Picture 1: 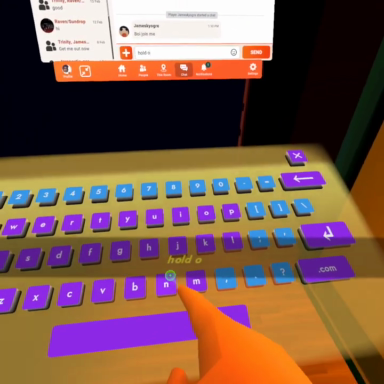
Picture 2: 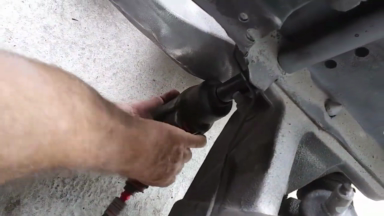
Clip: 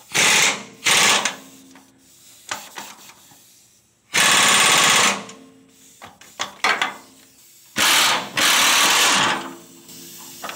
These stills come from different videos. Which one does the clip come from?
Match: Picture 2